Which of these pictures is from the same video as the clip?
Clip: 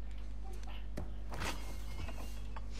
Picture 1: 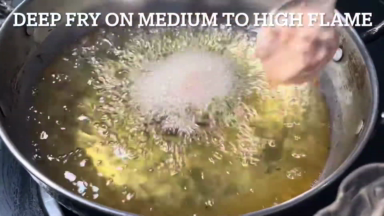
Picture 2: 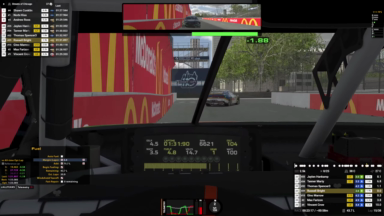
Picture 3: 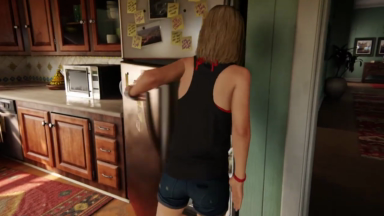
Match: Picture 3